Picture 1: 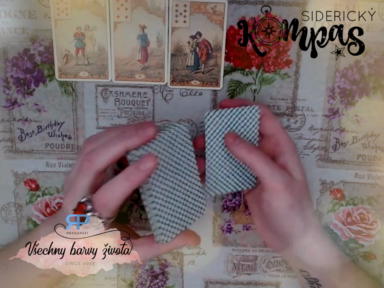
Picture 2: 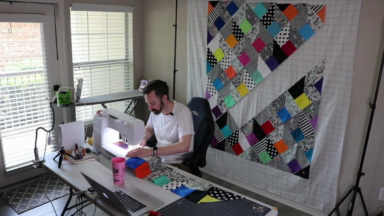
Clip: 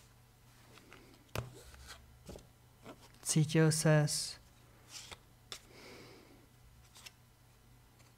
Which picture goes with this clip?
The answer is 1